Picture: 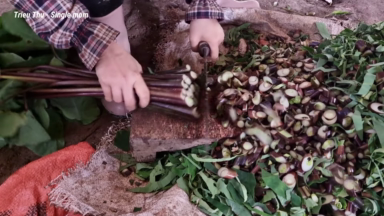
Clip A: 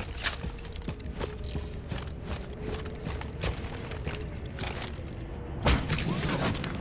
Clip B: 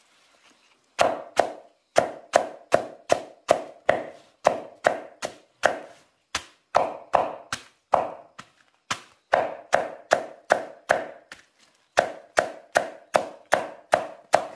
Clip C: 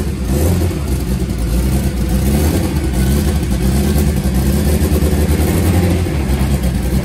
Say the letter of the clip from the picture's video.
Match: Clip B